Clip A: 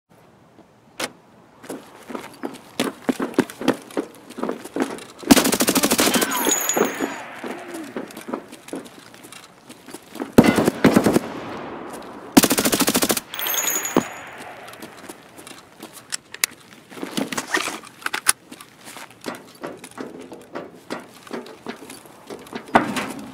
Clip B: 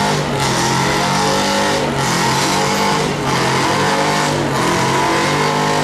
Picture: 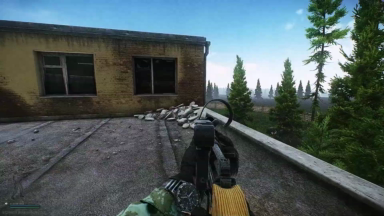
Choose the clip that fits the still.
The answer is A